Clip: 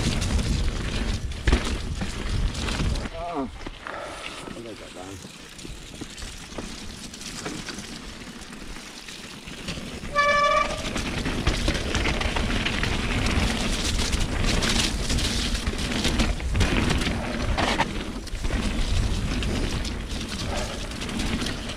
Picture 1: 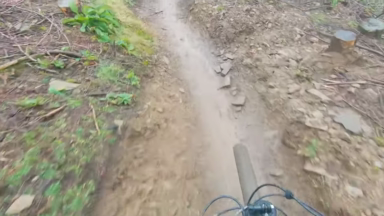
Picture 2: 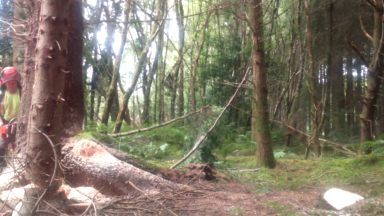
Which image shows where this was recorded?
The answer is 1